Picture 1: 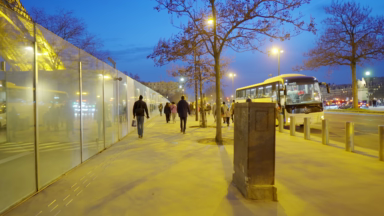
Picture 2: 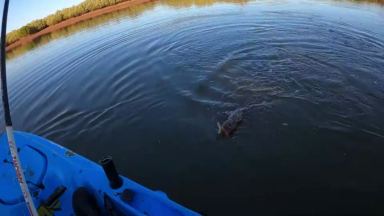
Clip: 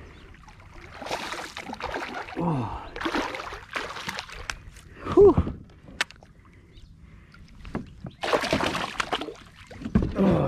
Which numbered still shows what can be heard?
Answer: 2